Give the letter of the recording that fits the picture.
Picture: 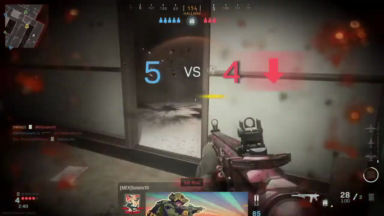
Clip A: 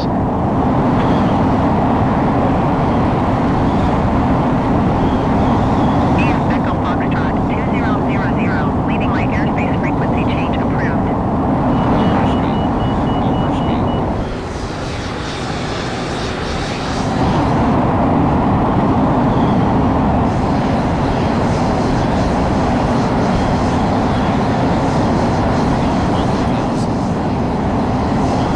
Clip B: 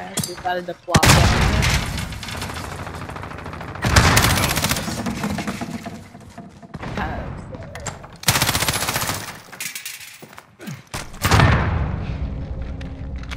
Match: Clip B